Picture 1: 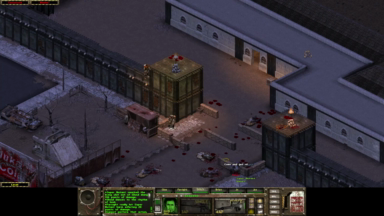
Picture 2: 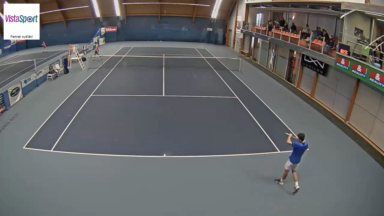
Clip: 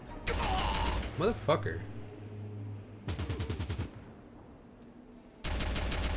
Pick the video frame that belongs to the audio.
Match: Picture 1